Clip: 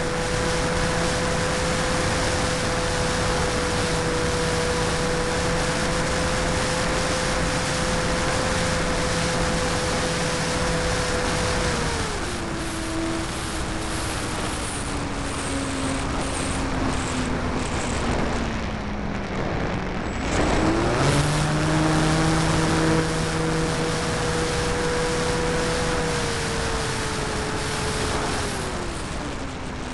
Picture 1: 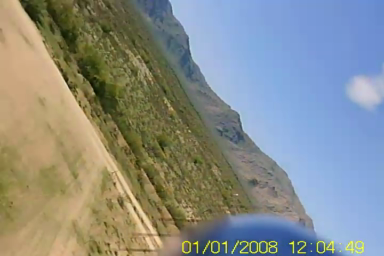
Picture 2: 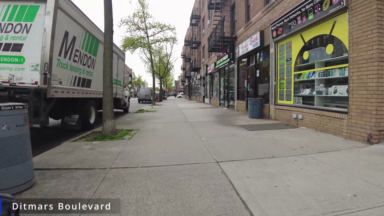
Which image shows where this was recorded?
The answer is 1